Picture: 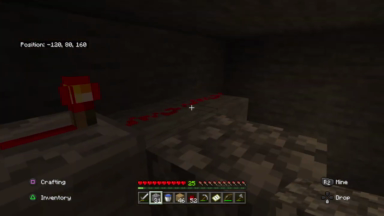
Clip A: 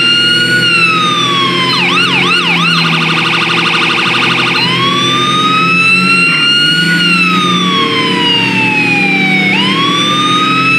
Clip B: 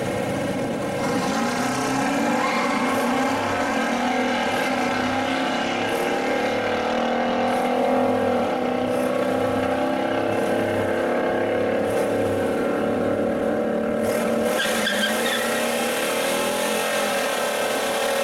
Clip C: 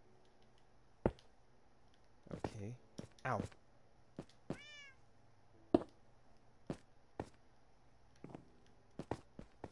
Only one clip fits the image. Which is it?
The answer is C